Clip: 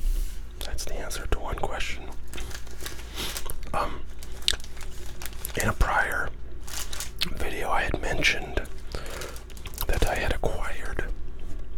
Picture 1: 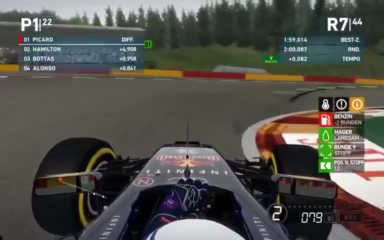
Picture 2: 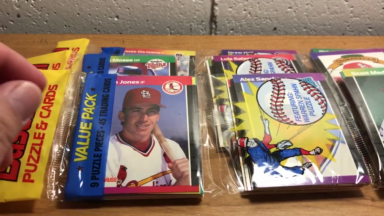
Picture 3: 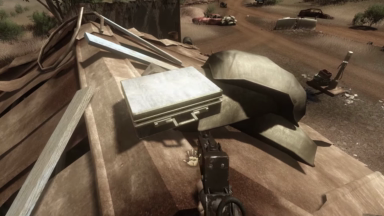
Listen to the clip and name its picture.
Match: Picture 2